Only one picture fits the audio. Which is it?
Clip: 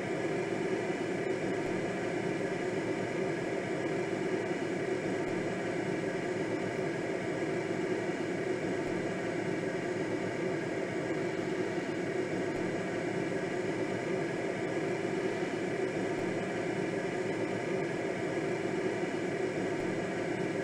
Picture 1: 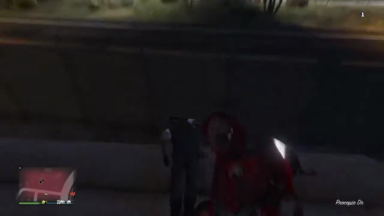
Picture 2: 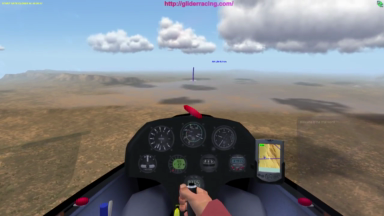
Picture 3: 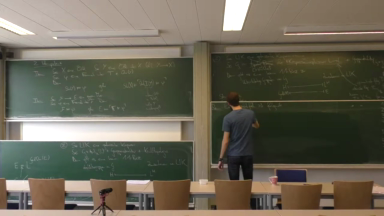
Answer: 2